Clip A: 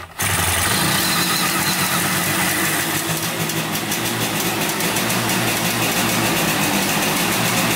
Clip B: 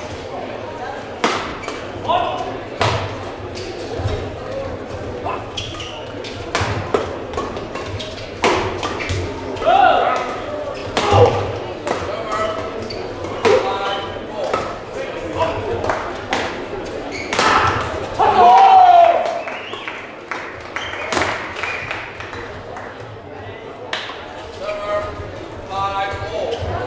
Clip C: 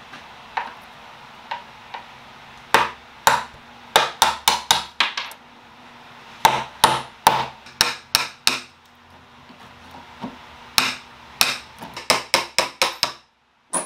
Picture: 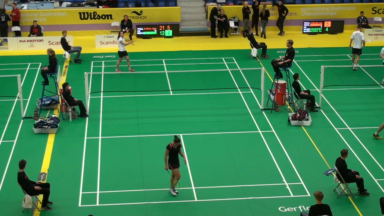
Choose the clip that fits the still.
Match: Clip B